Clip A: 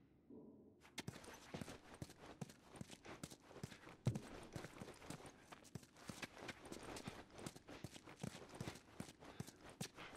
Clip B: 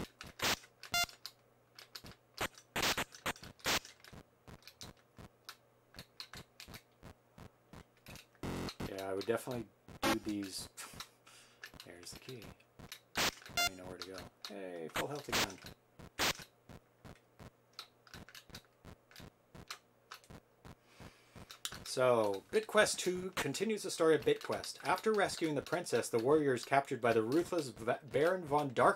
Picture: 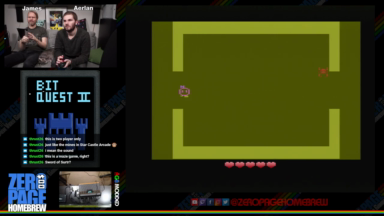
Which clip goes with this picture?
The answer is B